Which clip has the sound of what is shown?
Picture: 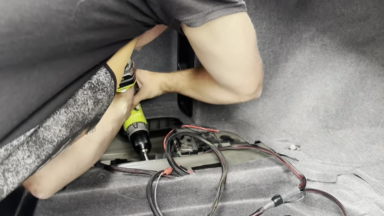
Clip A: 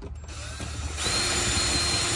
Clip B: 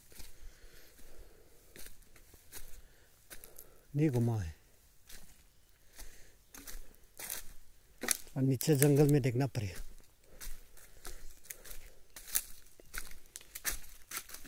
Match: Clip A